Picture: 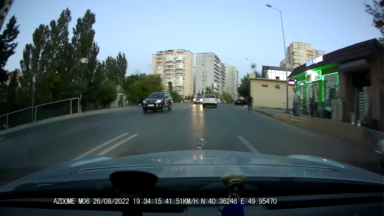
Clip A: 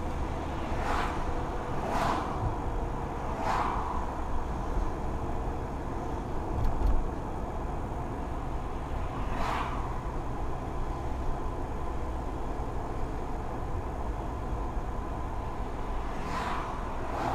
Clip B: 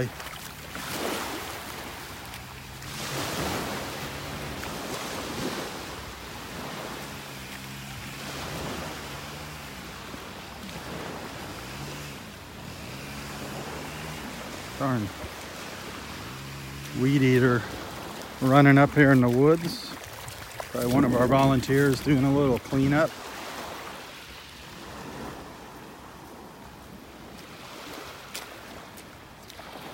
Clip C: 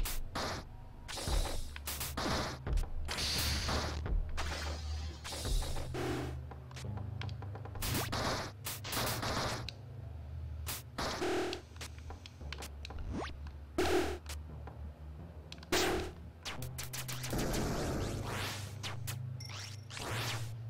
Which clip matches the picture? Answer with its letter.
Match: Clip A